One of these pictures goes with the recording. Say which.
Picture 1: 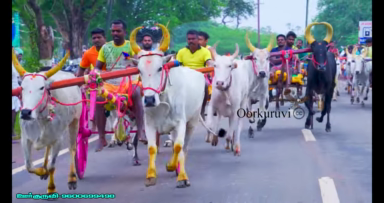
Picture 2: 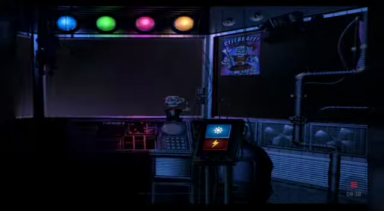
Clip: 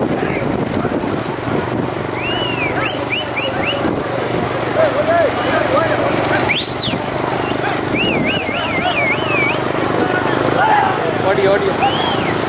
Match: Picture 1